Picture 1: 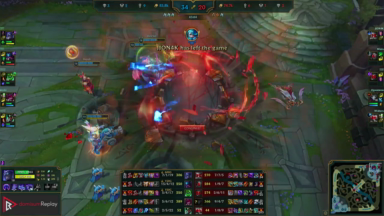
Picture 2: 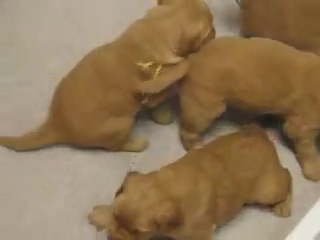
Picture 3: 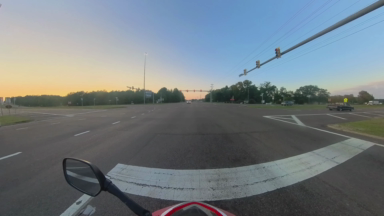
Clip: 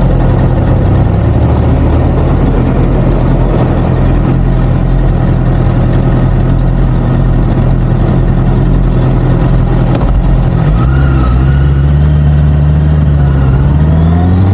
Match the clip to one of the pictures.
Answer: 3